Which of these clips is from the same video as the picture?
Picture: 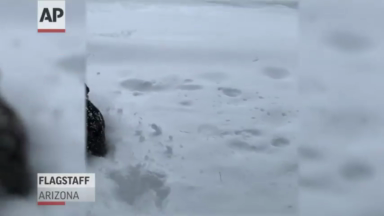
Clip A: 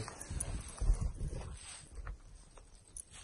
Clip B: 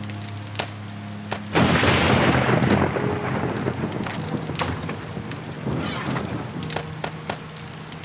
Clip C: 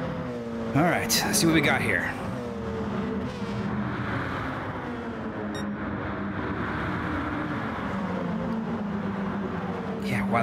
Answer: A